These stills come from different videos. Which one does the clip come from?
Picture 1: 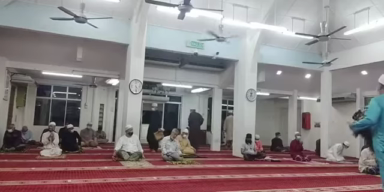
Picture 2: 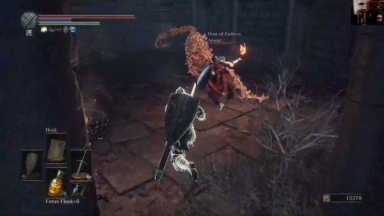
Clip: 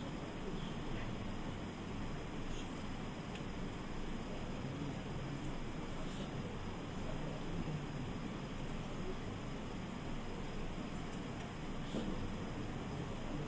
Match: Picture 1